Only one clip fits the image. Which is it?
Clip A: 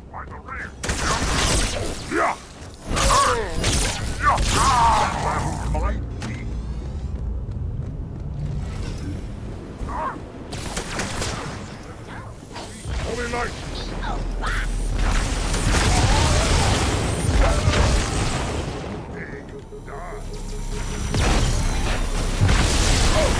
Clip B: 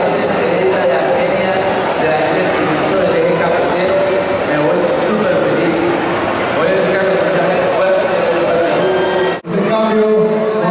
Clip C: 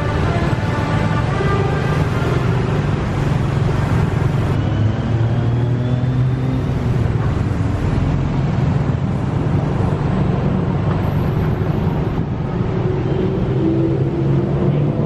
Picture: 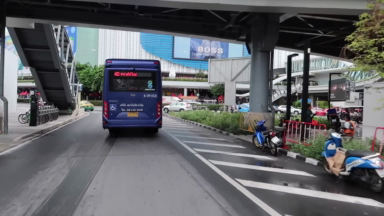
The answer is C